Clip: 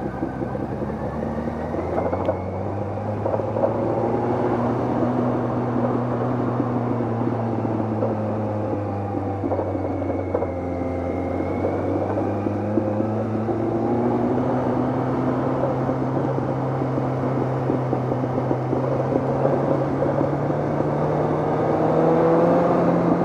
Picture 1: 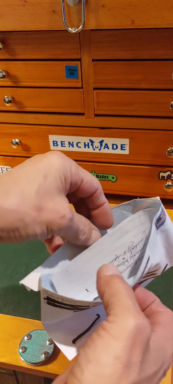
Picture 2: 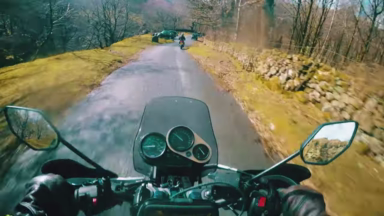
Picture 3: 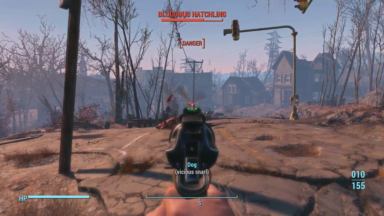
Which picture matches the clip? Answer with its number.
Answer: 2